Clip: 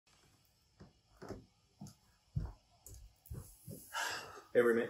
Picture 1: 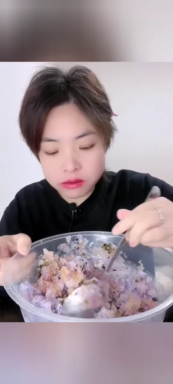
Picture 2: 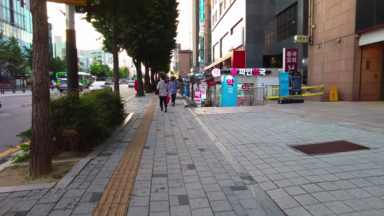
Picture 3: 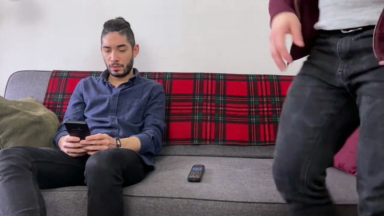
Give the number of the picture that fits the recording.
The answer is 3